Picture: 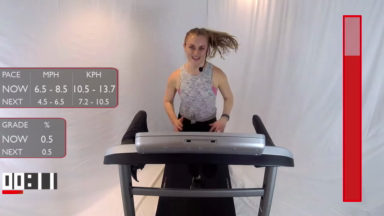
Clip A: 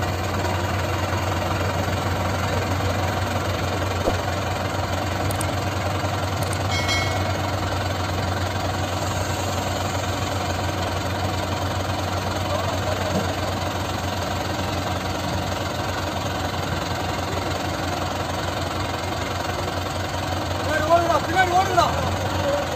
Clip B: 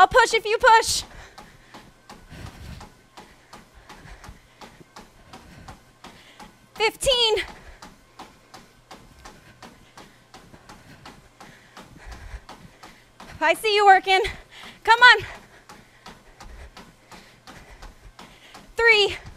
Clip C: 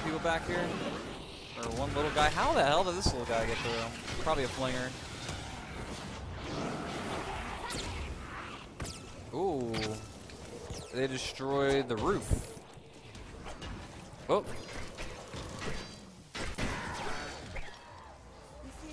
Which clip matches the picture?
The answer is B